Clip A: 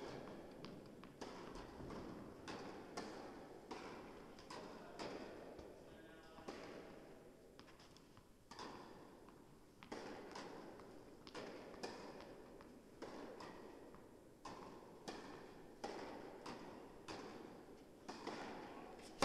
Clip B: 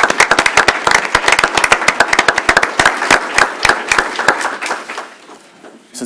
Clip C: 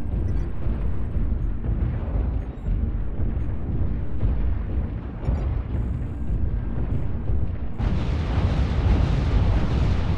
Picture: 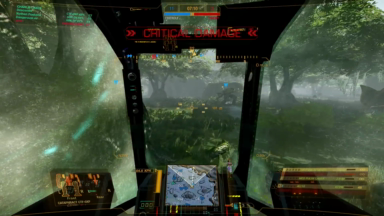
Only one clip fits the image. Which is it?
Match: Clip C